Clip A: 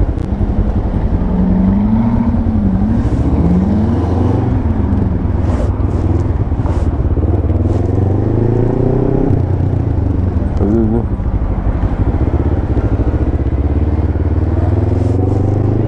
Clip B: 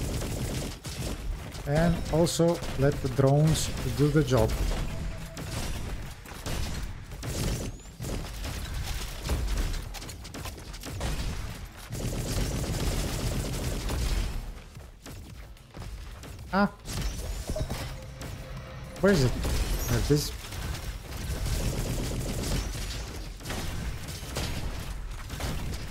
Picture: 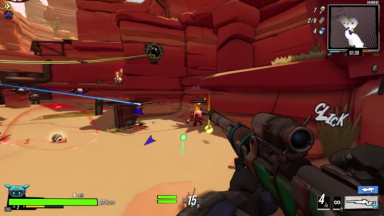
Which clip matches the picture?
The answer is B